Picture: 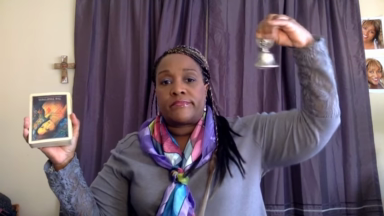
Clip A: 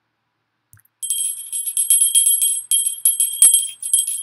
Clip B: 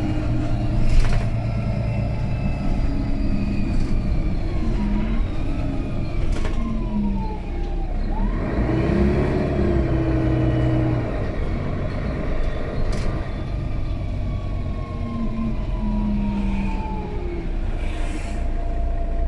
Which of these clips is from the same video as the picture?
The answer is A